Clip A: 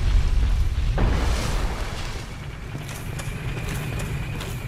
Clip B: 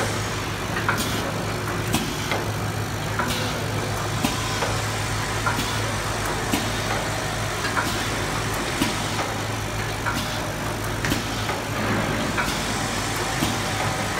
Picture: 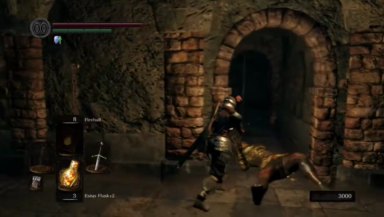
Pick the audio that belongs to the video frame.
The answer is A